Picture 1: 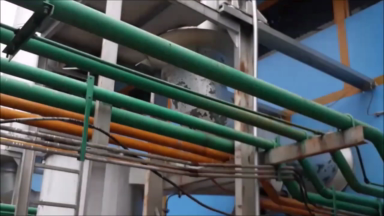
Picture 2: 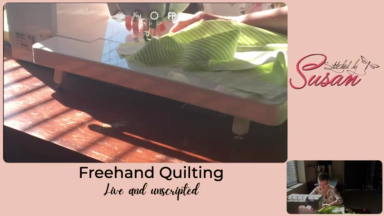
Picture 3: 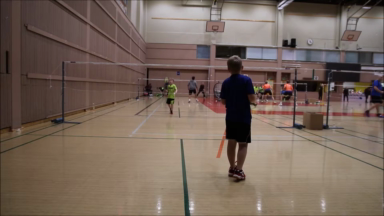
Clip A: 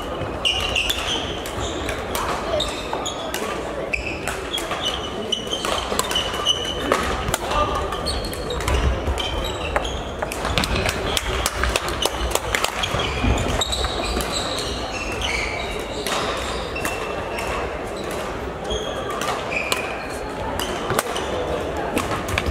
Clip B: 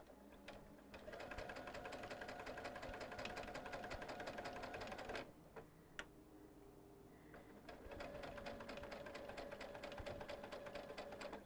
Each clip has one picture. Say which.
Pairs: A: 3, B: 2